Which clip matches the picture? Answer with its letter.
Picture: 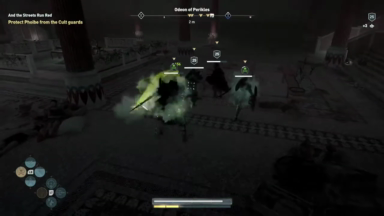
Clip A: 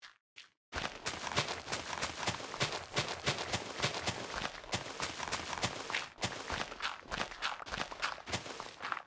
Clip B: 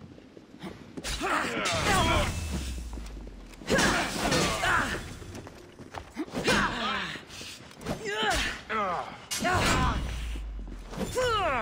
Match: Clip B